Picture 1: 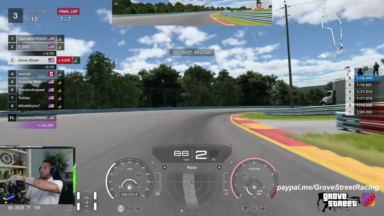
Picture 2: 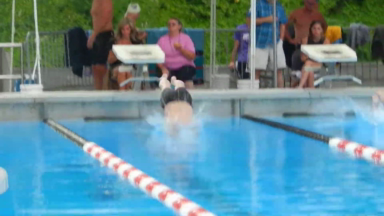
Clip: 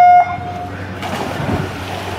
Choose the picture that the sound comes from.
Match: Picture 2